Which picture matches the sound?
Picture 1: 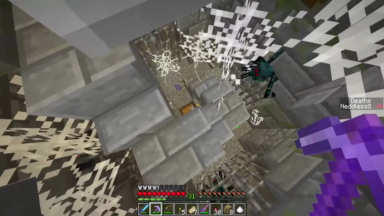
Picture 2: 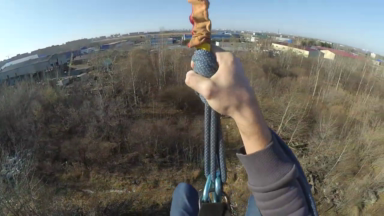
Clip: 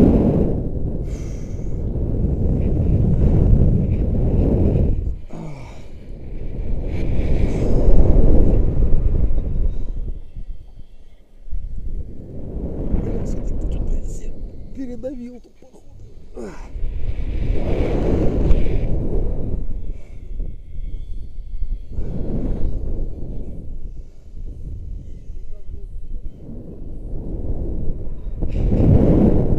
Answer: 2